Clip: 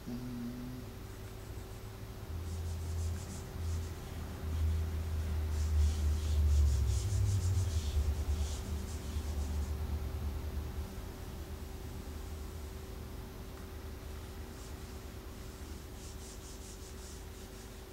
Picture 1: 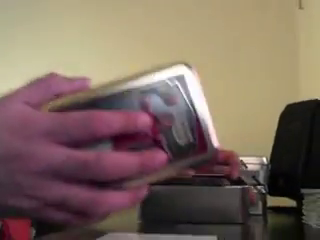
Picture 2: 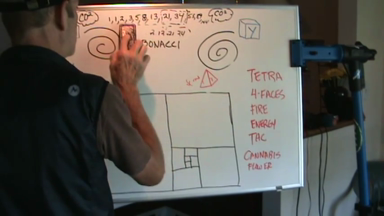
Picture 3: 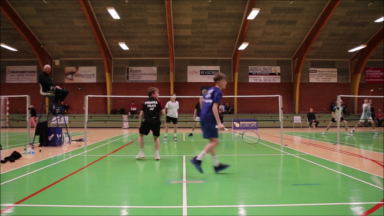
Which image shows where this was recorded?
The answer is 2